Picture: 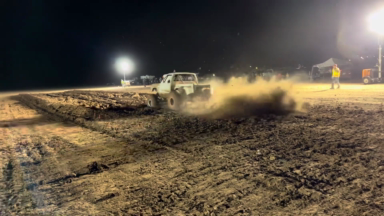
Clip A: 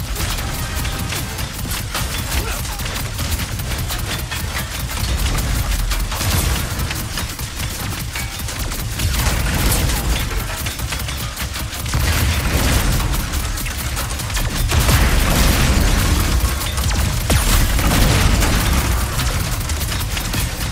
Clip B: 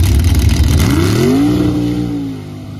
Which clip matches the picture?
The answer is B